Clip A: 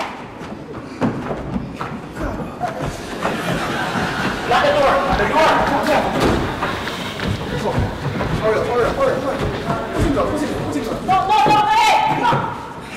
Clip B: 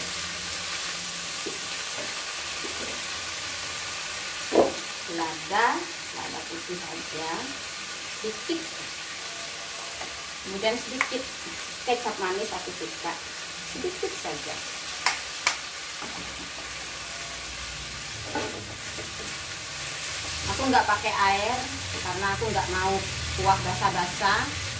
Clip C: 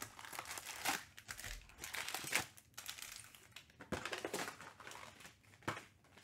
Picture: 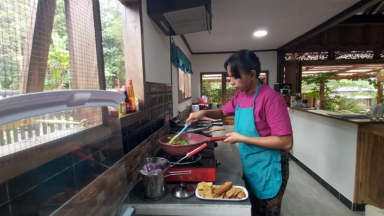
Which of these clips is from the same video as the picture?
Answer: B